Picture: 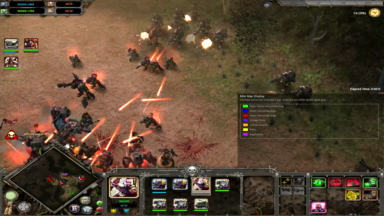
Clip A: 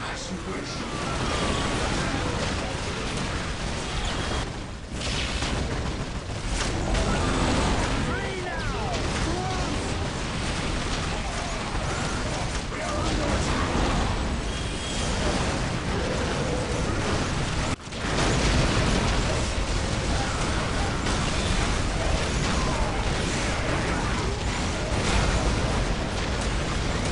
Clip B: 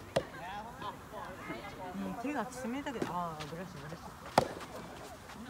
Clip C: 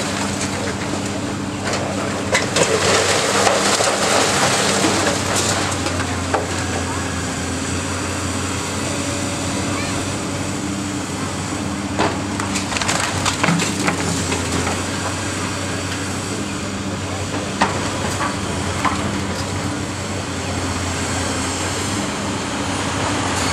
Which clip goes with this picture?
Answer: A